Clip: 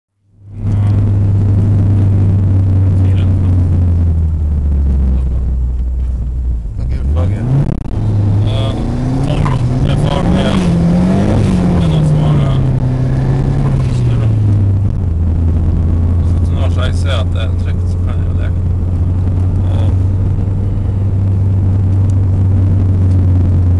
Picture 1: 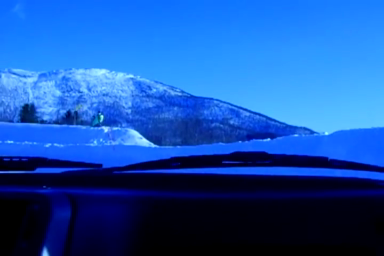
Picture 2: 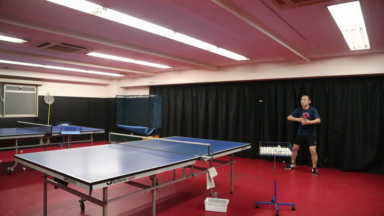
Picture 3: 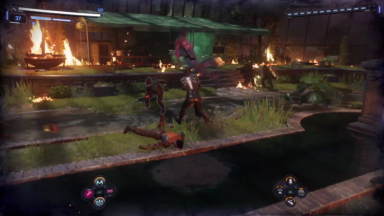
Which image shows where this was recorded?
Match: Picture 1